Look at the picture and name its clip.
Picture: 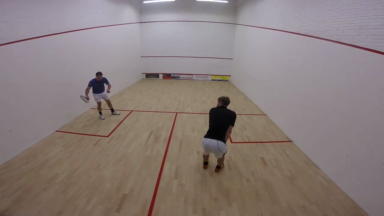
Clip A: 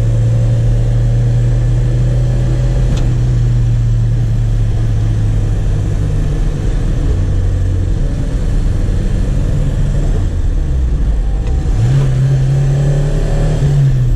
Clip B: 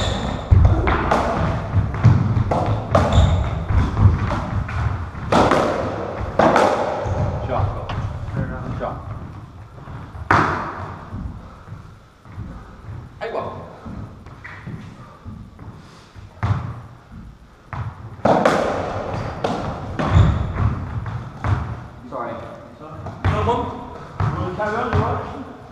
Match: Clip B